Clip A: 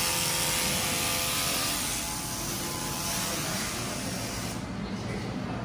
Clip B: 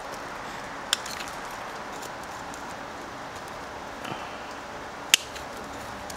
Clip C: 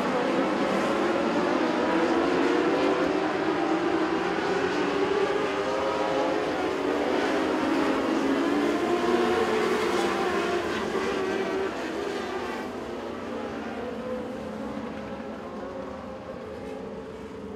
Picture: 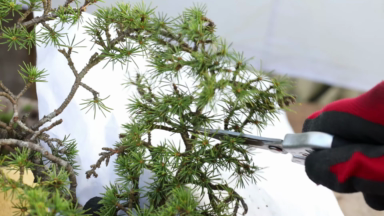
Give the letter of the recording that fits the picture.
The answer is B